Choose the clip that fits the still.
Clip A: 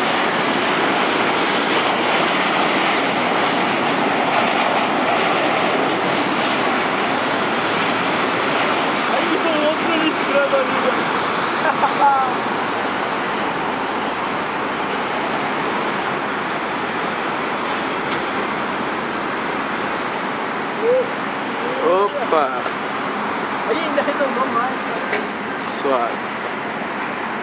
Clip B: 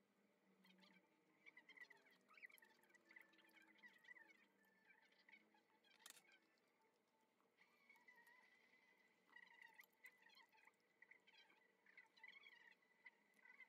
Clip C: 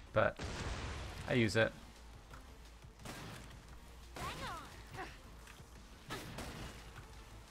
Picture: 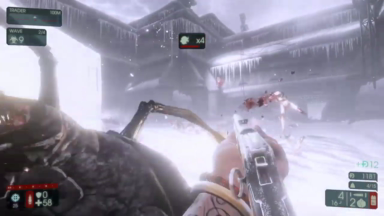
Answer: C